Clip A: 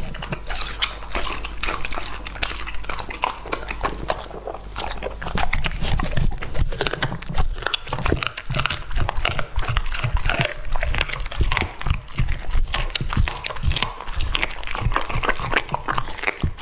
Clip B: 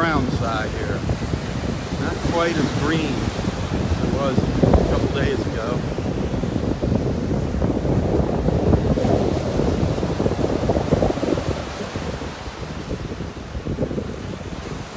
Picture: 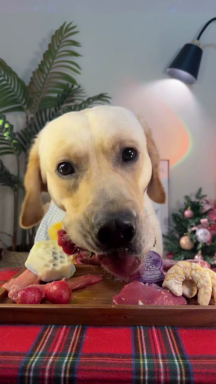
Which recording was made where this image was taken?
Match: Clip A